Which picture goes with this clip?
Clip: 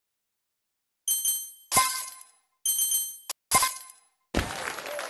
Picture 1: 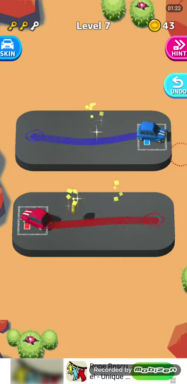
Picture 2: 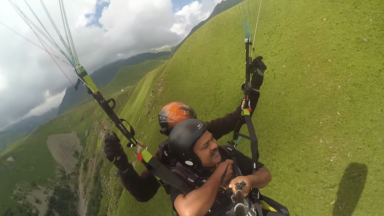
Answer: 1